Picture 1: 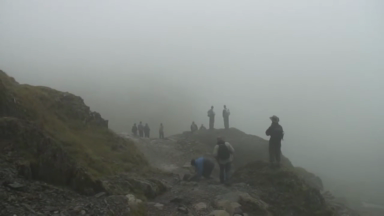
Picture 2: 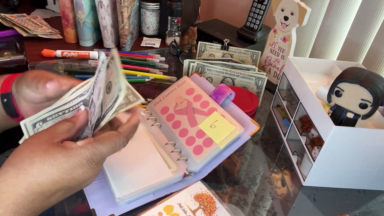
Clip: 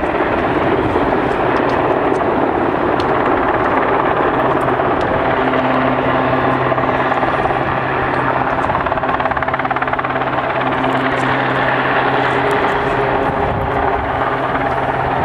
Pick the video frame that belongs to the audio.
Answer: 1